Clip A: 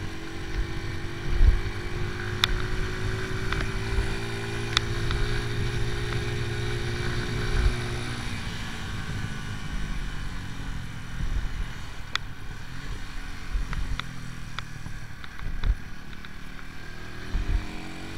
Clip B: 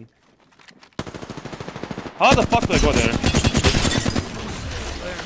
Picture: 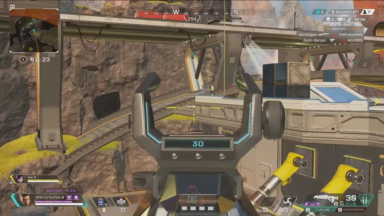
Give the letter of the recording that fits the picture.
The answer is B